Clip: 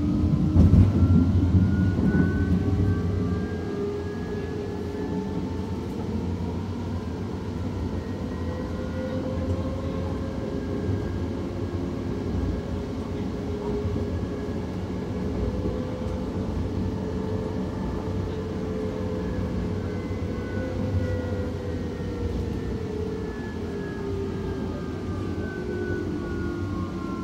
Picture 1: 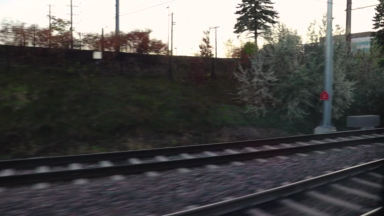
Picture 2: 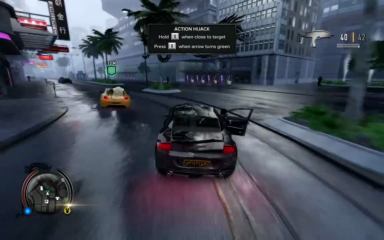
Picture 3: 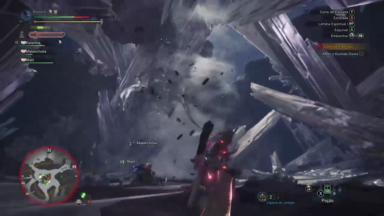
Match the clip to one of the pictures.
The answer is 1